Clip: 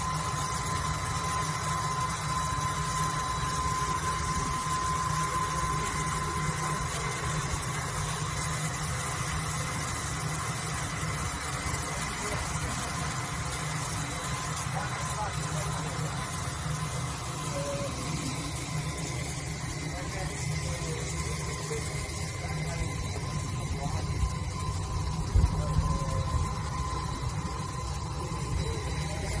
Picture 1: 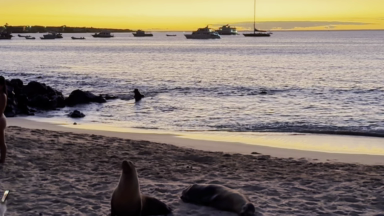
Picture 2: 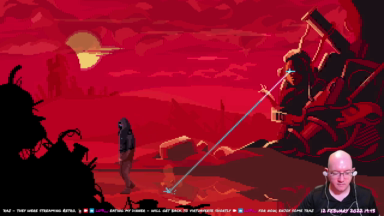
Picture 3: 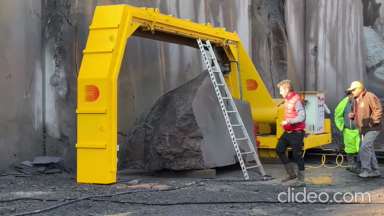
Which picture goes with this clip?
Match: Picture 3